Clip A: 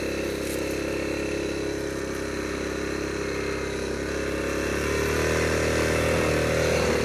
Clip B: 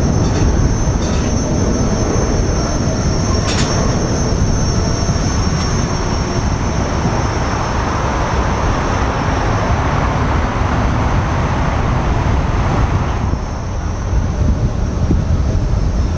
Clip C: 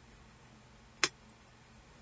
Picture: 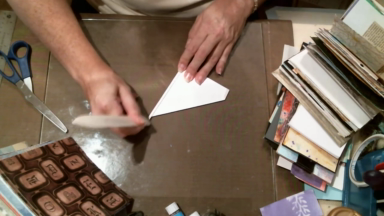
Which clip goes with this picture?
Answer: C